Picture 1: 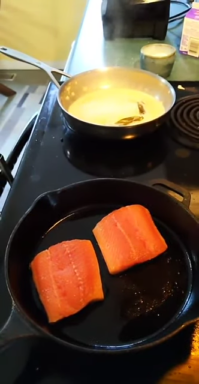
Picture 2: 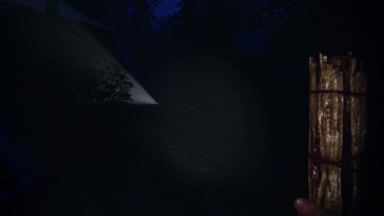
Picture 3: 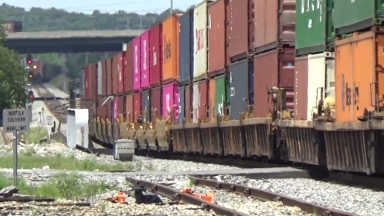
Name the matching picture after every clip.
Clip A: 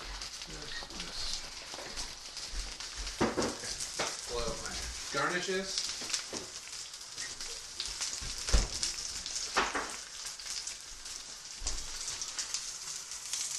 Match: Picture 1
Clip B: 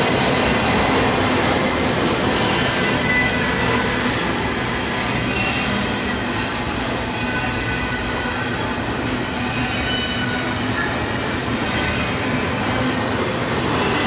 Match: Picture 3